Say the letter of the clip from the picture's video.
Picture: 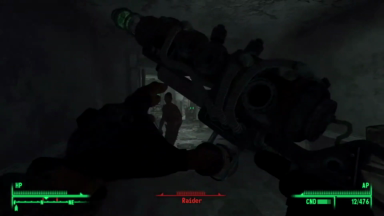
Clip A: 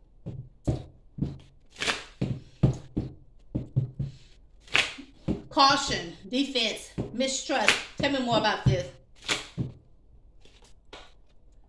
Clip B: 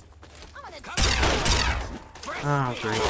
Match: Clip B